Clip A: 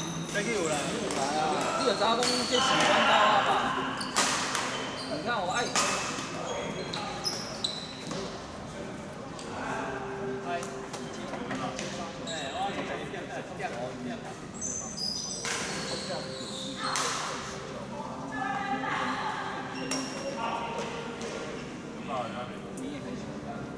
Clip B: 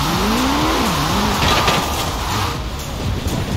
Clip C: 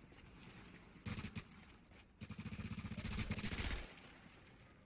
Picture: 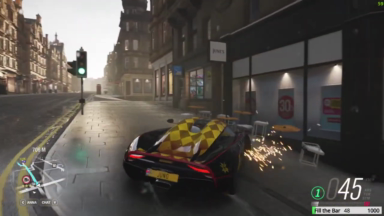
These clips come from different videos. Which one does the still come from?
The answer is B